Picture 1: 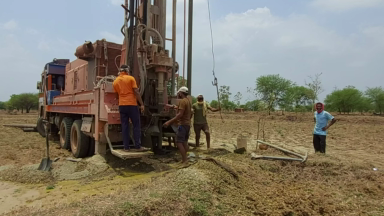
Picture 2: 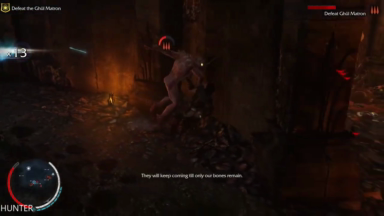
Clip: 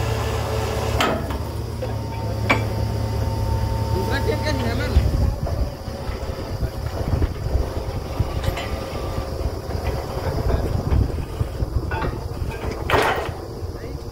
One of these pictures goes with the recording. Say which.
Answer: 1